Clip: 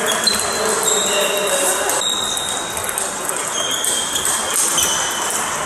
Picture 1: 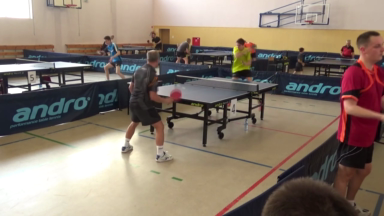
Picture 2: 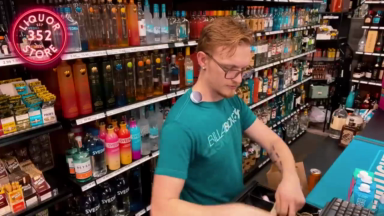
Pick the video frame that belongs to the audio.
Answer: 1